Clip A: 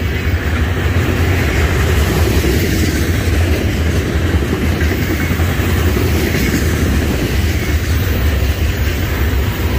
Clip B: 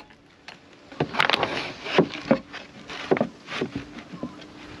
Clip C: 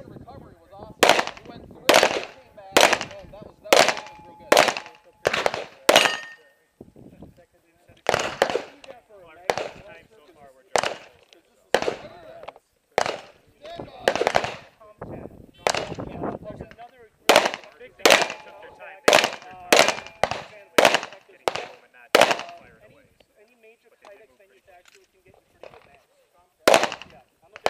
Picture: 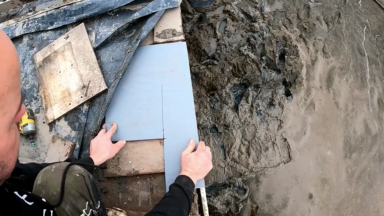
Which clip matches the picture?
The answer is B